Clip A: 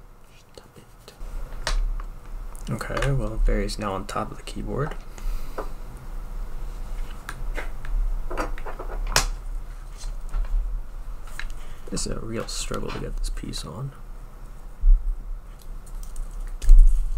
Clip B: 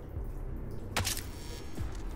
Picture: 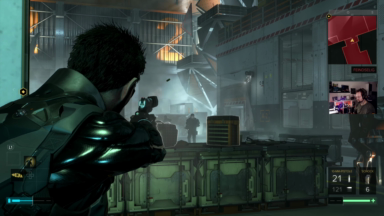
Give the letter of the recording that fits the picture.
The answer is B